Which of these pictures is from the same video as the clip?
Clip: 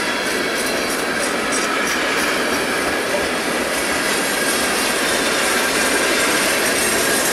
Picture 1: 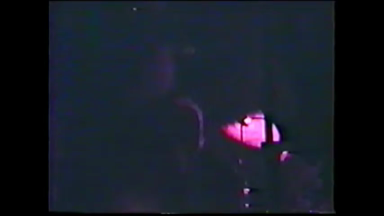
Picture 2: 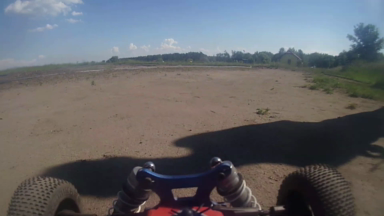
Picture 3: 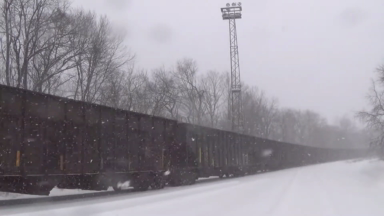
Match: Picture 3